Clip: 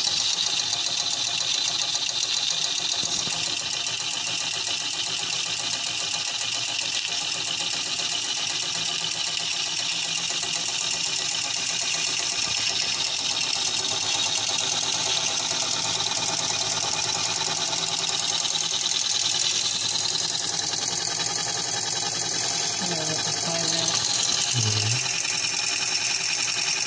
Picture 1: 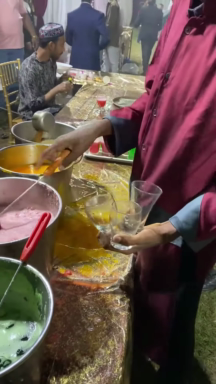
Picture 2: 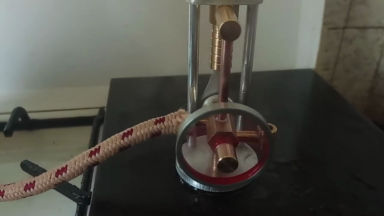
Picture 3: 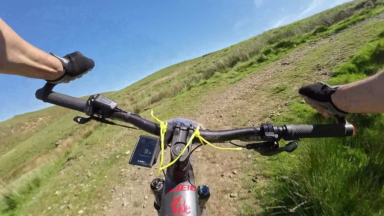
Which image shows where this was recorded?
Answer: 2